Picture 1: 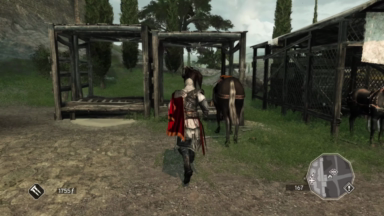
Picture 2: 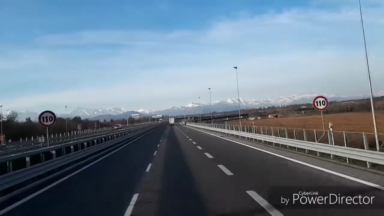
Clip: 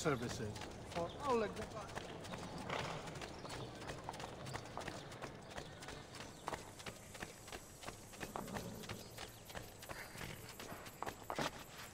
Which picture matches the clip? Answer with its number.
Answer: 1